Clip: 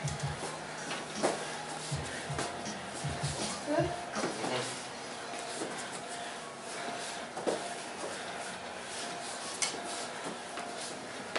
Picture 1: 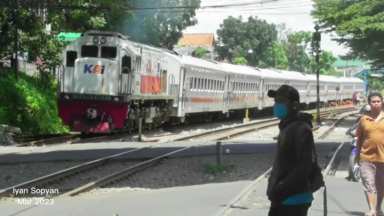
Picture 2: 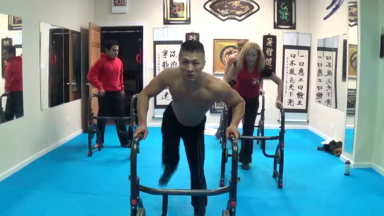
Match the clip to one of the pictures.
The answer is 2